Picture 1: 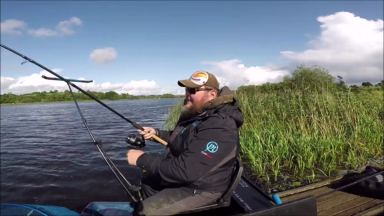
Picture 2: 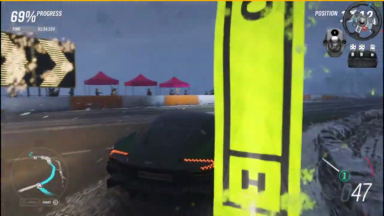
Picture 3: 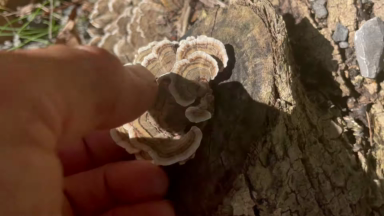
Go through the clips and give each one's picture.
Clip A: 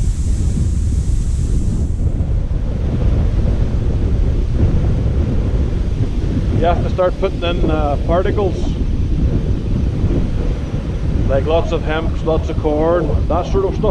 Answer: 1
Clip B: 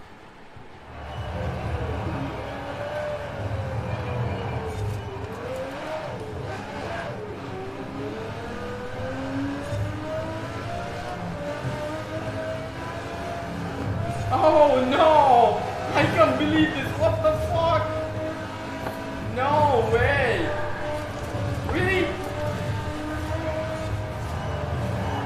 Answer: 2